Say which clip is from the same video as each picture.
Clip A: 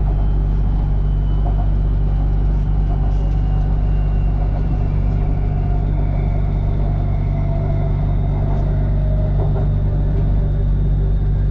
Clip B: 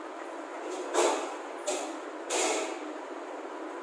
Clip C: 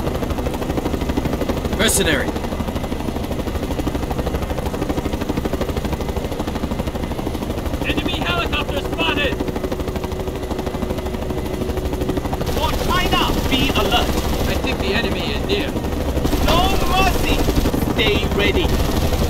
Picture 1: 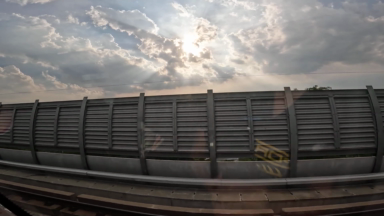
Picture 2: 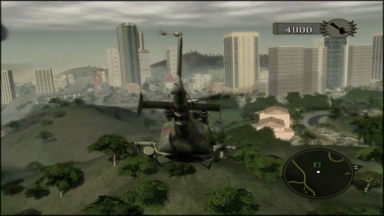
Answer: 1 A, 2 C